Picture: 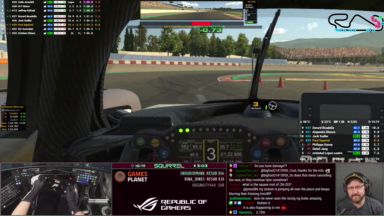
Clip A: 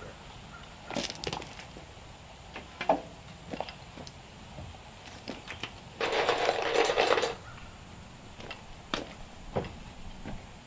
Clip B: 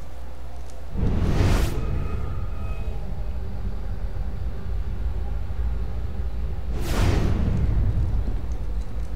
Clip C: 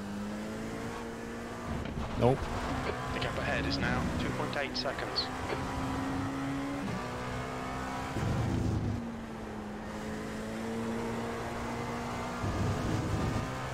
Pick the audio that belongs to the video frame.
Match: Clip C